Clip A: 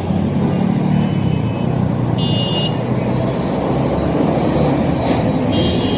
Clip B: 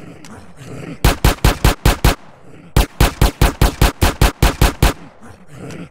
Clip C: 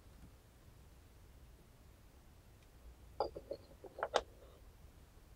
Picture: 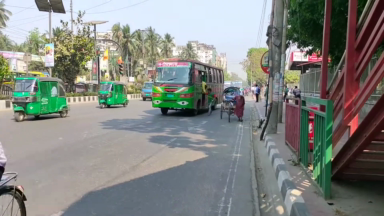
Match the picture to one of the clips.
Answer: A